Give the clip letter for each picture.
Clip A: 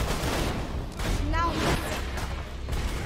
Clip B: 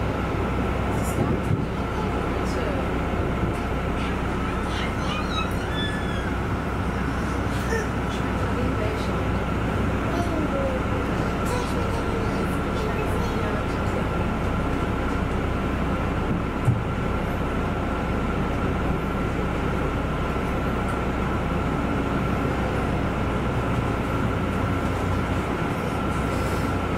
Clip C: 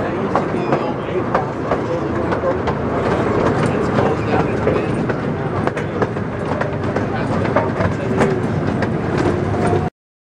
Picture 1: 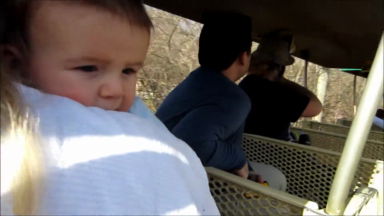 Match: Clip C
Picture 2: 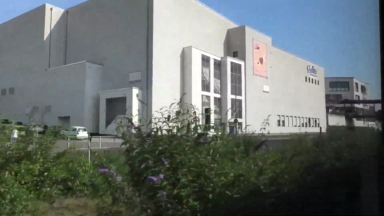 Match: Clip B